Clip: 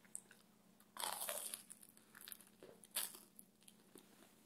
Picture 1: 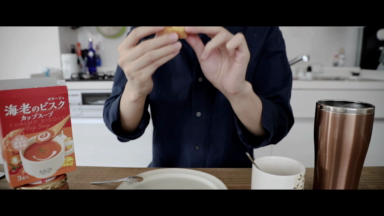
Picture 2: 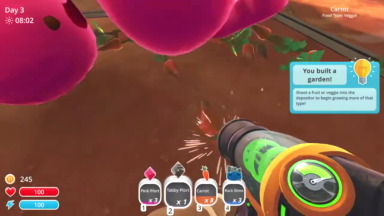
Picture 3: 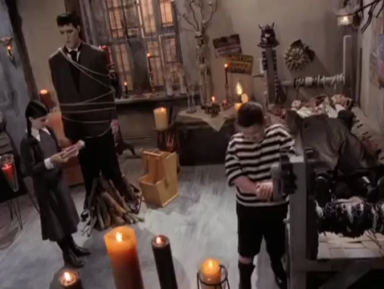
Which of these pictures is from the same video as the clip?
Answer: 1